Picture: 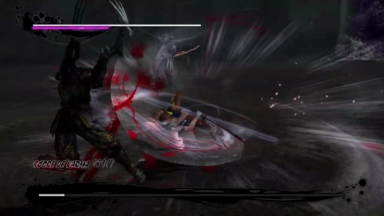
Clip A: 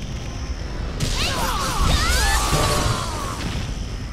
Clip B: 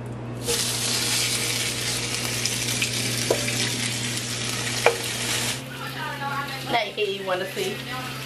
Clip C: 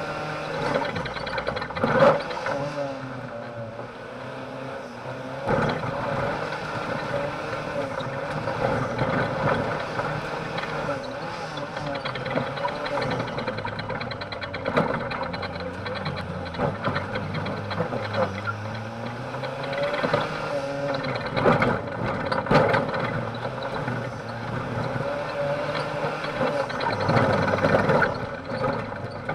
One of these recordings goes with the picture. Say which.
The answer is A